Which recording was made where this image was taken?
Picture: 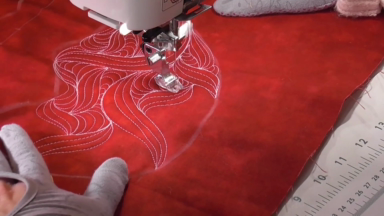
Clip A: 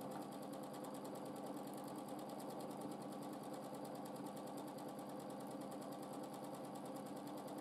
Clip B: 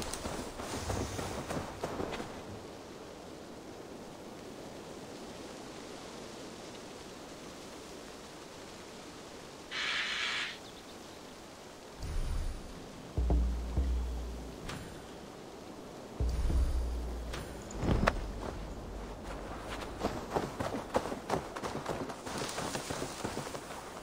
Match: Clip A